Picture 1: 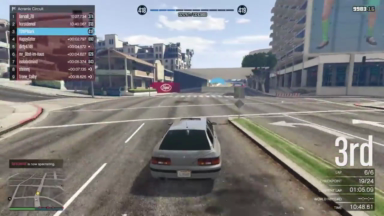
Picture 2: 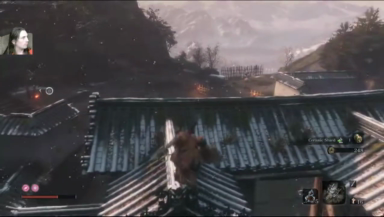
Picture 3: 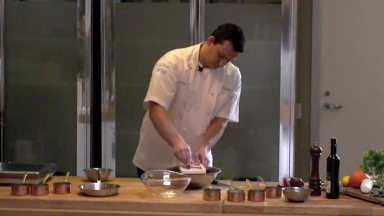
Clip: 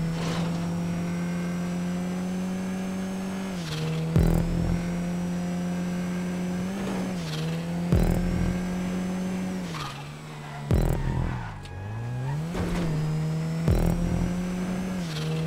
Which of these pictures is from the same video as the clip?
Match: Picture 1